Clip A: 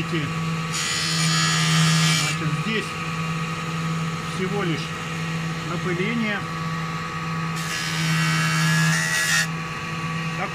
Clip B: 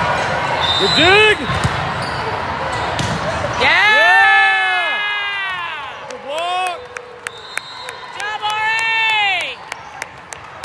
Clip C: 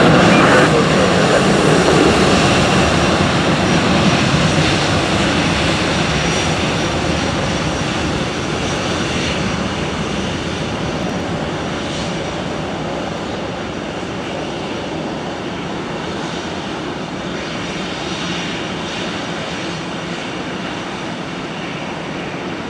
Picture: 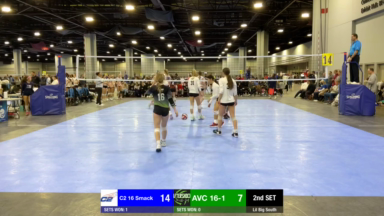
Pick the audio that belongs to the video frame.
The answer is B